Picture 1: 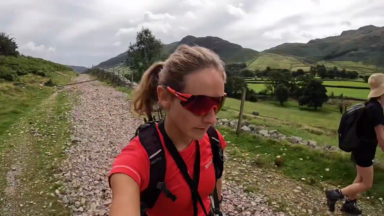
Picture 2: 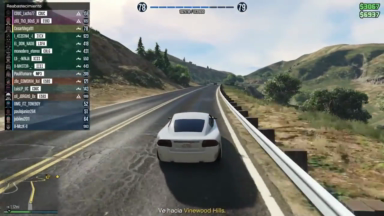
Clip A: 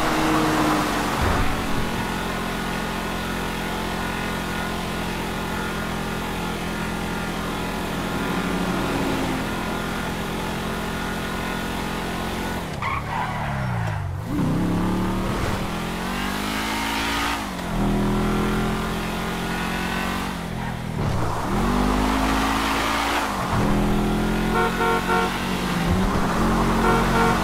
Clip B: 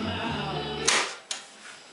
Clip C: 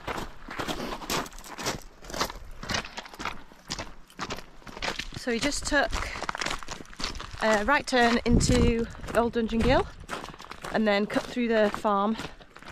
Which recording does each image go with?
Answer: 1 C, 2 A